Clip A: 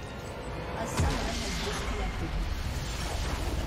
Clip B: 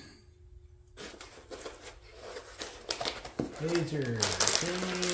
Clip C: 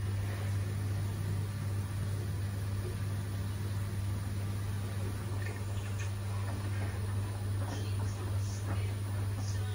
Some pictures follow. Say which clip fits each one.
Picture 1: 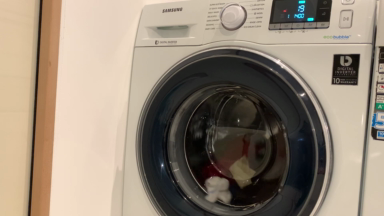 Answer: C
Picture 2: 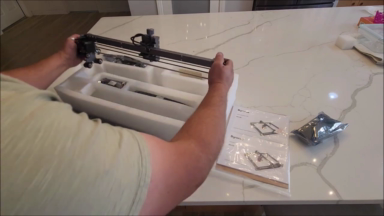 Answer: B